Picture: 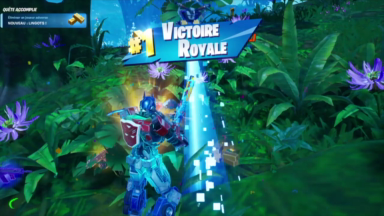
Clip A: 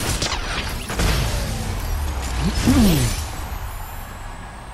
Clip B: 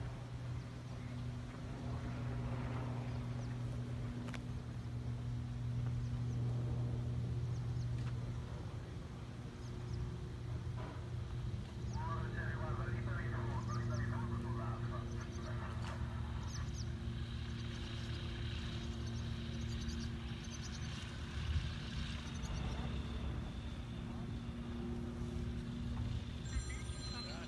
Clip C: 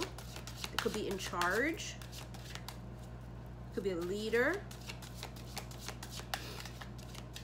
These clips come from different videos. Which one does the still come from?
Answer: A